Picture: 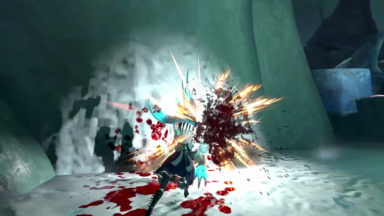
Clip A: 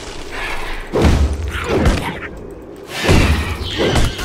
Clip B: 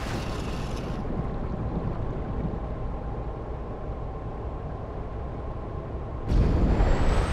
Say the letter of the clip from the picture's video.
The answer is A